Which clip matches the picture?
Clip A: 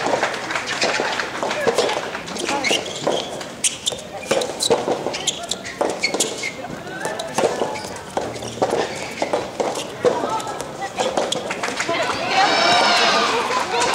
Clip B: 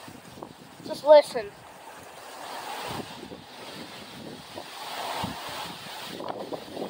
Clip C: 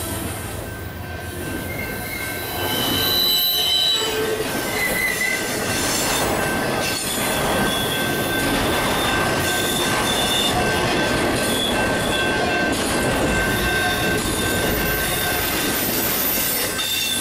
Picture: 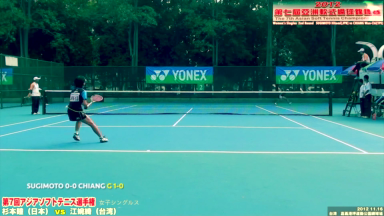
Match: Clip A